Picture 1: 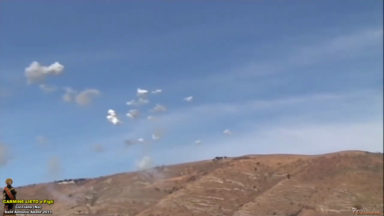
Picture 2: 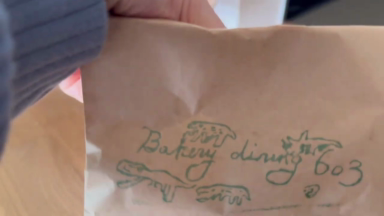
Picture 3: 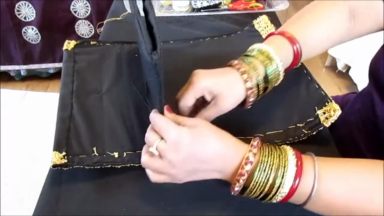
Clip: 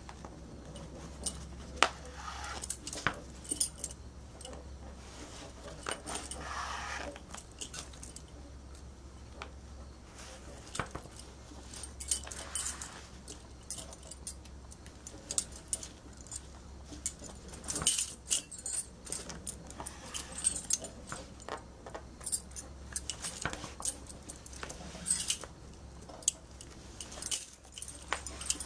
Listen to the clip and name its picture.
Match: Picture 3